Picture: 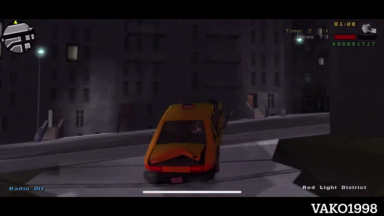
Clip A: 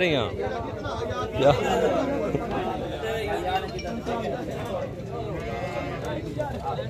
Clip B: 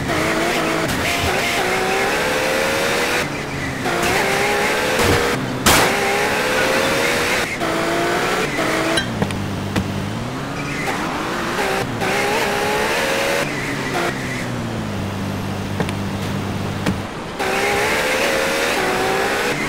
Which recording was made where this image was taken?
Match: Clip B